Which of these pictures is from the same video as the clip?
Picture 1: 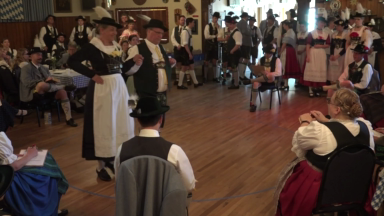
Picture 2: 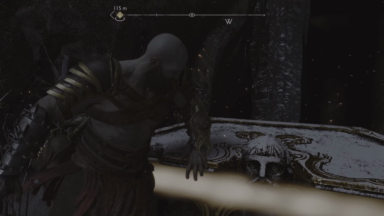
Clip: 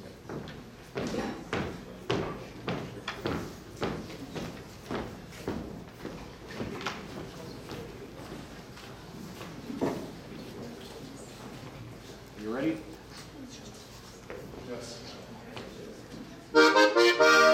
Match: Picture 1